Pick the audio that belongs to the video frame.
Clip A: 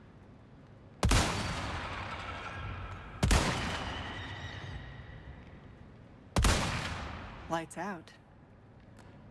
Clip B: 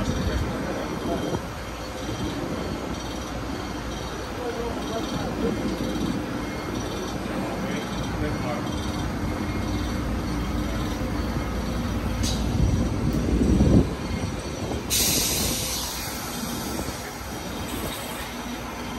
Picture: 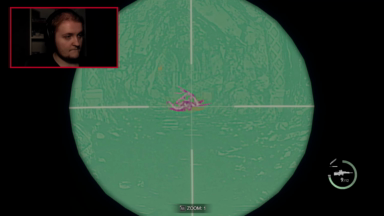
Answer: A